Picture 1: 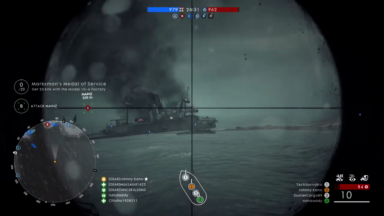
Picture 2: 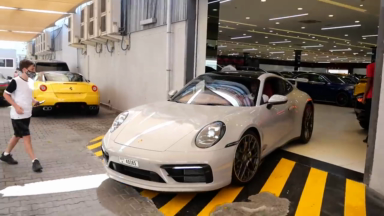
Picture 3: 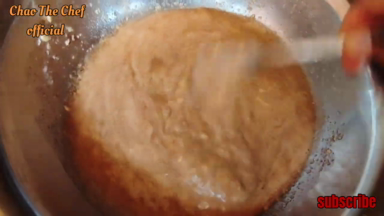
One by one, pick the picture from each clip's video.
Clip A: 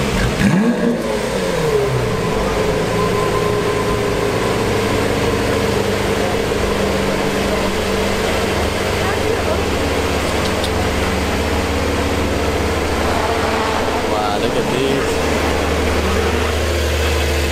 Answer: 2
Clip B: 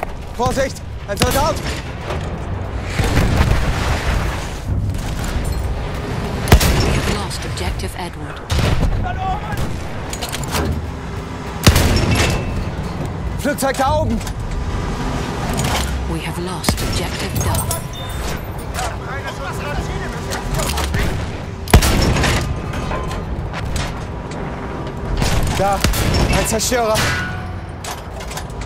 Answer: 1